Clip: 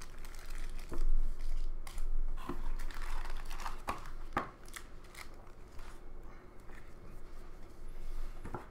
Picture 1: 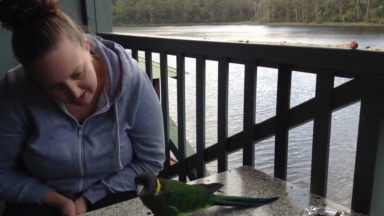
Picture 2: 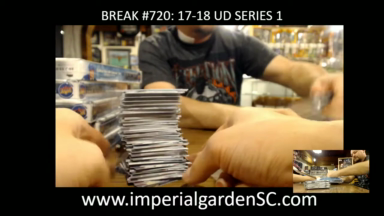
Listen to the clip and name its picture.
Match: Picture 2